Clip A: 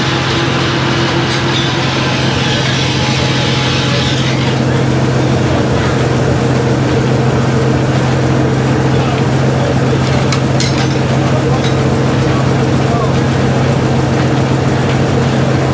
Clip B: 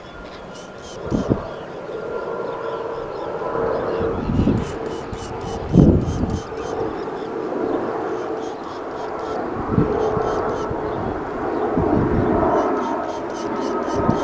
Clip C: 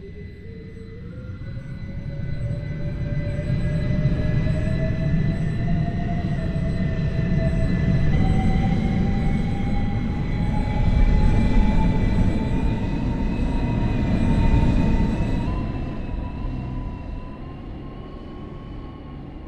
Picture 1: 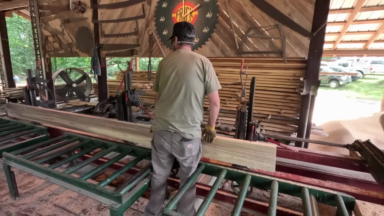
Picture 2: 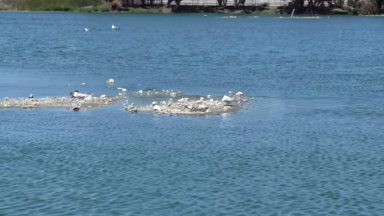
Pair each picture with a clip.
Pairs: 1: A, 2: B